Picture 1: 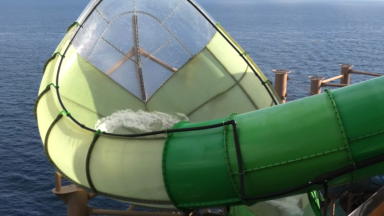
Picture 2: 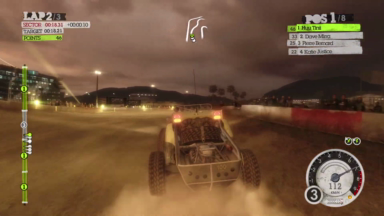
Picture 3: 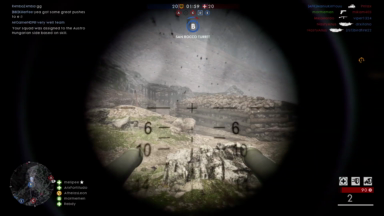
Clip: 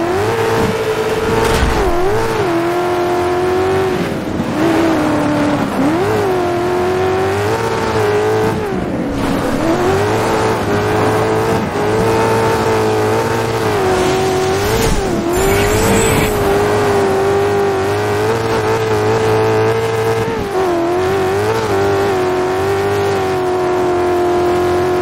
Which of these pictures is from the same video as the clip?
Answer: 2